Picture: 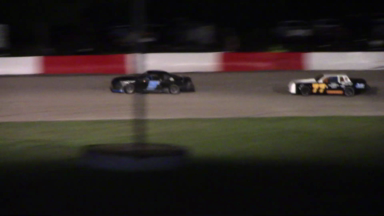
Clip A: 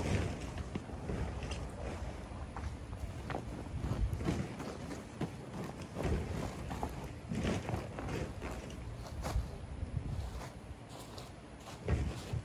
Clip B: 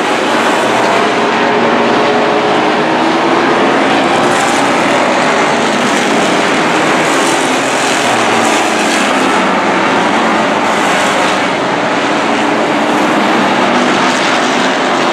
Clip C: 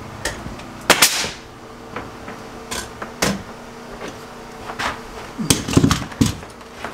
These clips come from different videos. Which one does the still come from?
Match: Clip B